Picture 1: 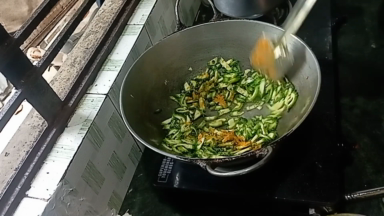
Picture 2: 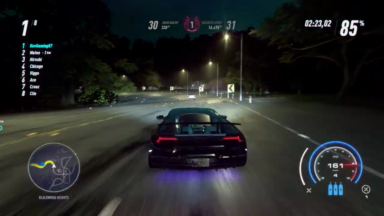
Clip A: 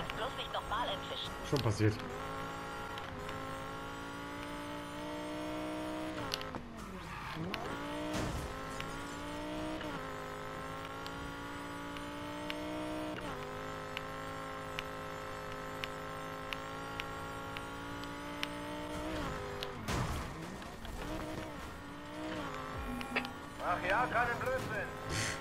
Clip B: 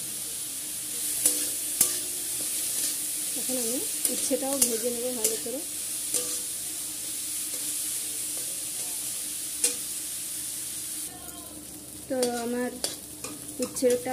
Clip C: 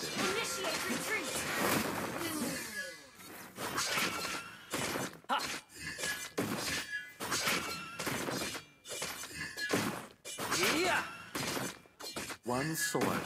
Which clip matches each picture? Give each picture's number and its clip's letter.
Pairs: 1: B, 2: A